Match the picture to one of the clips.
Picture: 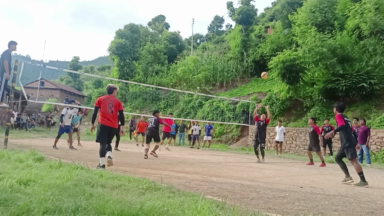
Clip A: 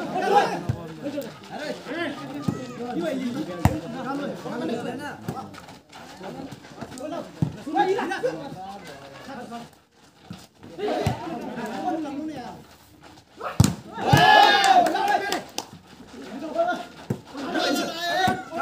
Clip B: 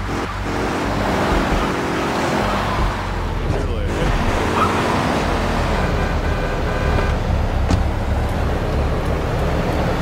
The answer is A